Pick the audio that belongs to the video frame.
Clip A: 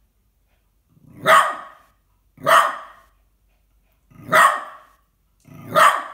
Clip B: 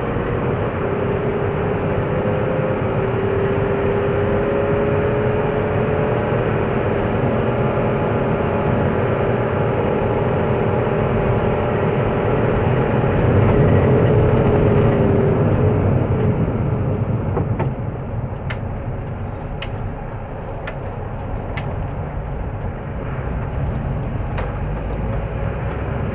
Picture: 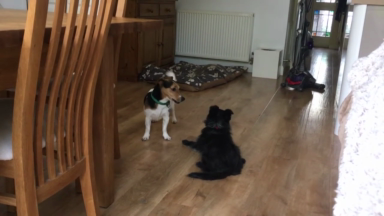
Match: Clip A